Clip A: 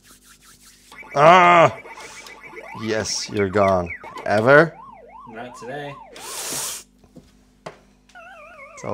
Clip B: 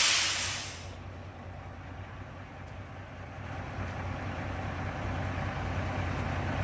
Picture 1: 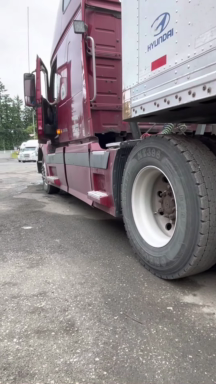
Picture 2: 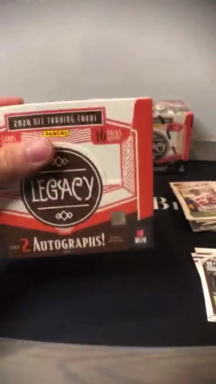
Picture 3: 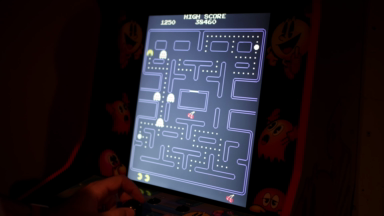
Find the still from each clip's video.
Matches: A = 3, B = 1